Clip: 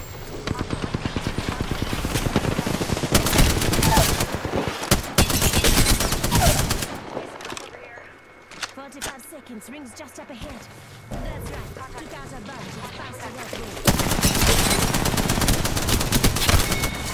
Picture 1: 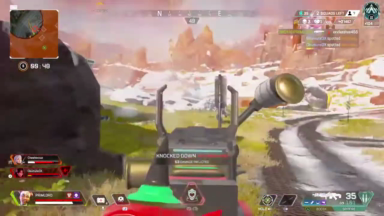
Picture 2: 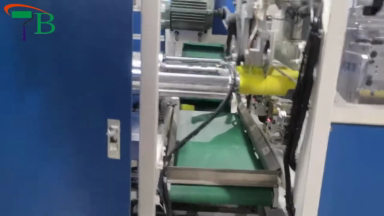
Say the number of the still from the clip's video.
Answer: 1